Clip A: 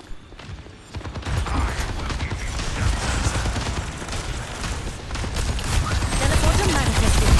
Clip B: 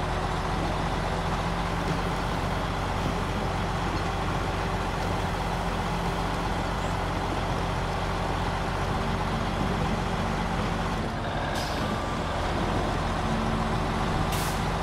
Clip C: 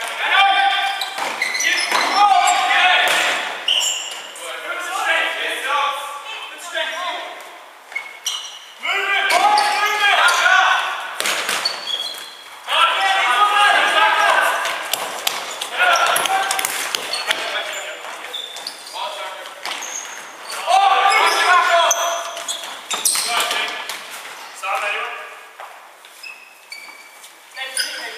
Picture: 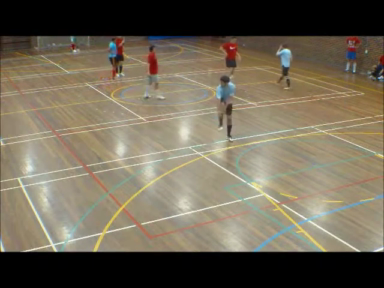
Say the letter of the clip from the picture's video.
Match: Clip C